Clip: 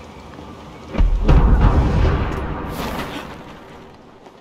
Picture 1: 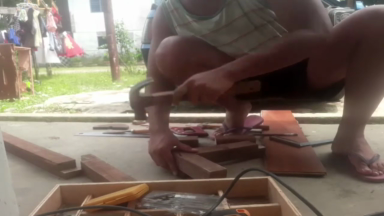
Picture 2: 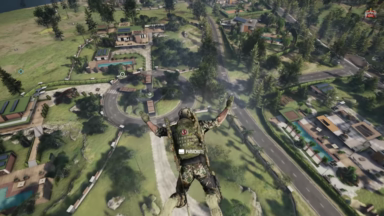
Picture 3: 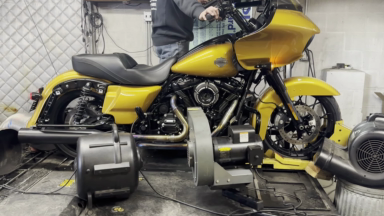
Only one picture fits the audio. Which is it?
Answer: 2